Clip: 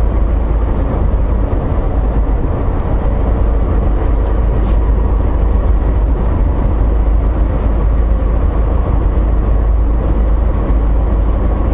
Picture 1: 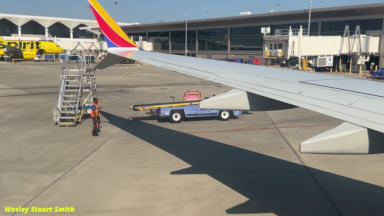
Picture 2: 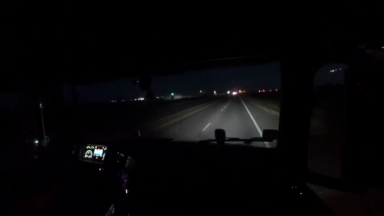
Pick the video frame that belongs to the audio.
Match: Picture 2